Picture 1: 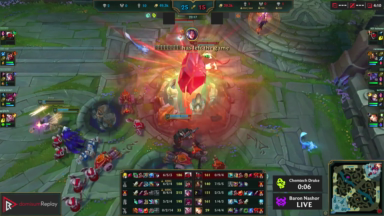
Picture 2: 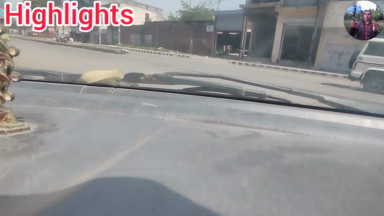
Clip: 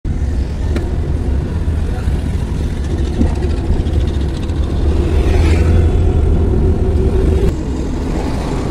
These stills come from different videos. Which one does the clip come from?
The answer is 2